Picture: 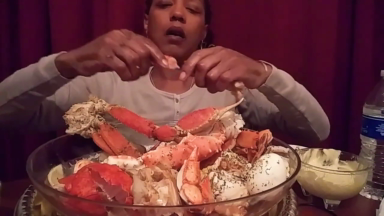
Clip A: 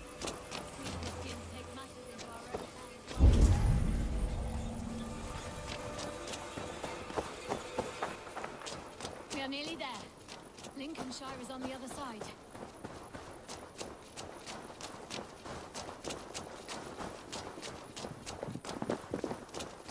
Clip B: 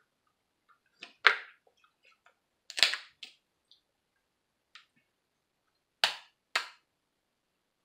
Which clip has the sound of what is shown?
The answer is B